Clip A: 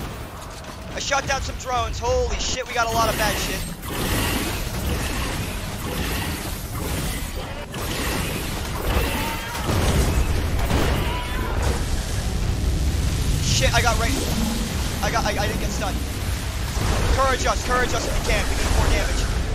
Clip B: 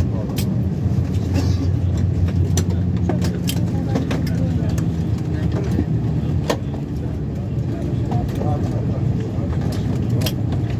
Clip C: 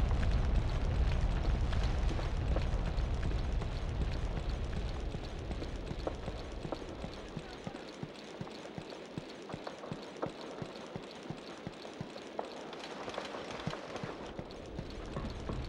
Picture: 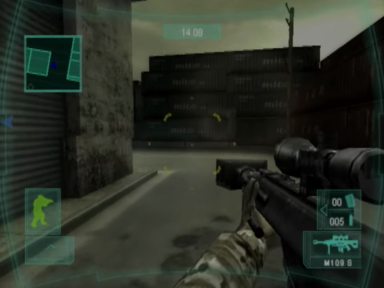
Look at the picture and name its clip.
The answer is C